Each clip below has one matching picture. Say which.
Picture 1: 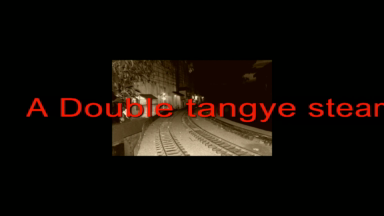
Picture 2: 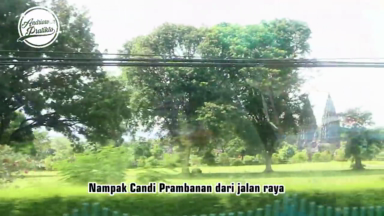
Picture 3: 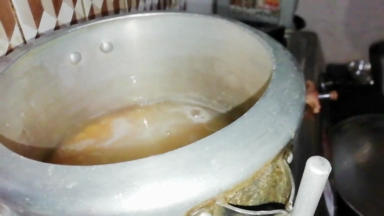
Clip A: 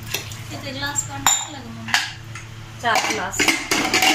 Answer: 3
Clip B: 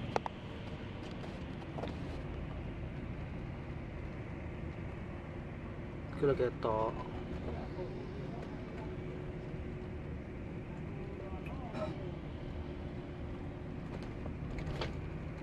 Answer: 2